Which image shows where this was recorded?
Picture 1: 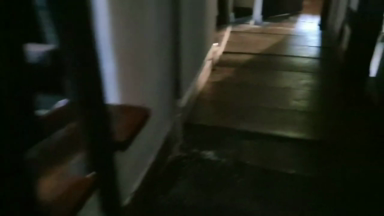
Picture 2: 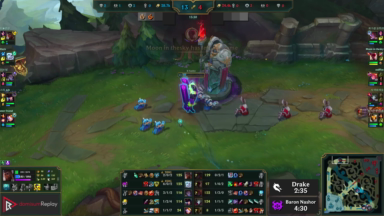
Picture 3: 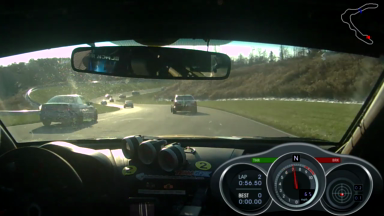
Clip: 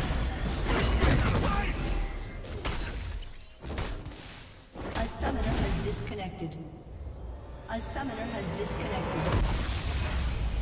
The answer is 2